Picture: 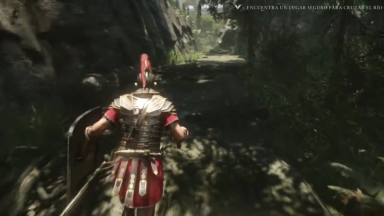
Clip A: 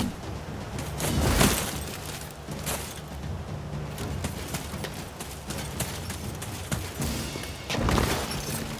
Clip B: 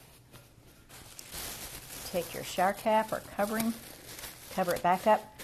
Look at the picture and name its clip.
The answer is A